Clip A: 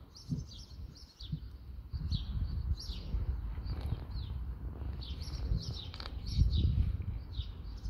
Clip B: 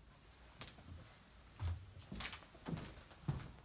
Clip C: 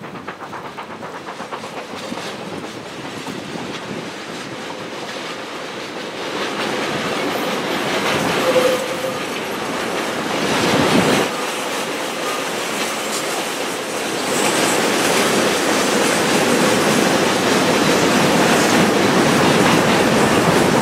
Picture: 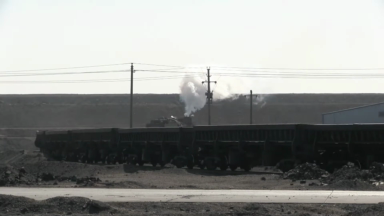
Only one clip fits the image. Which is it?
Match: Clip C